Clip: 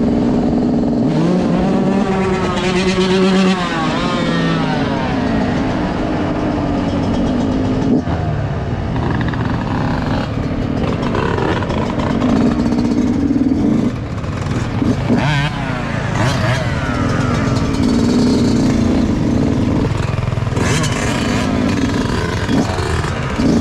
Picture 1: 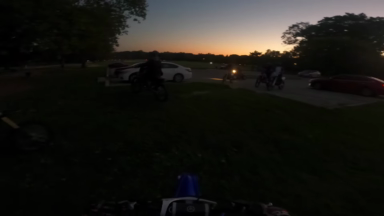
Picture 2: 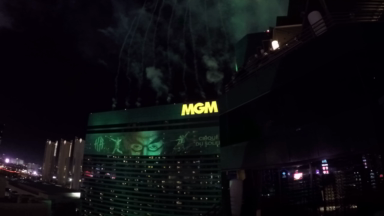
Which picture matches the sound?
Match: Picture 1